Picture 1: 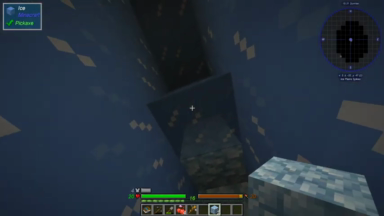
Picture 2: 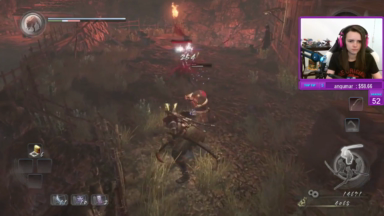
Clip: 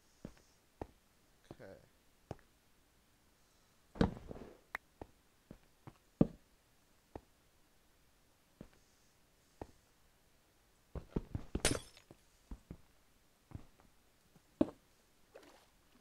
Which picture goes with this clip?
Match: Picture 1